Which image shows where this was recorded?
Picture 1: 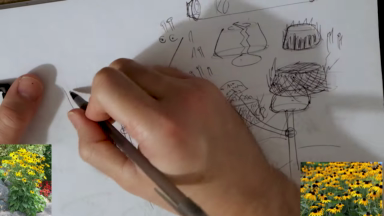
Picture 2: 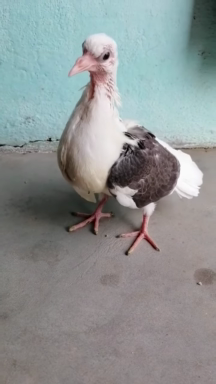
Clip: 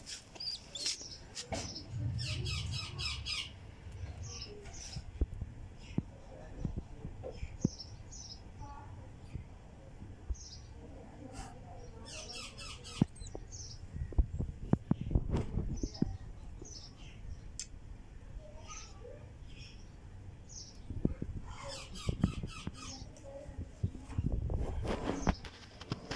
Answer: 2